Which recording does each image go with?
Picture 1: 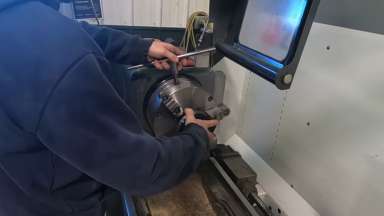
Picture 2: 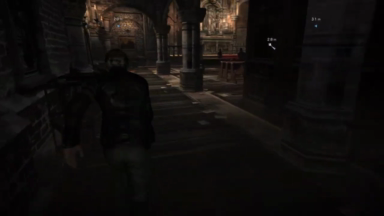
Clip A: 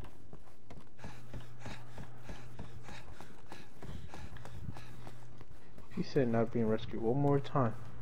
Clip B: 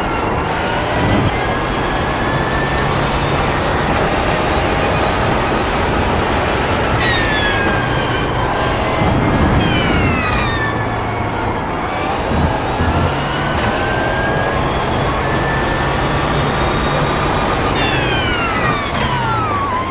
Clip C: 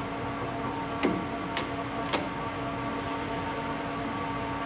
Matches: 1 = C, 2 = A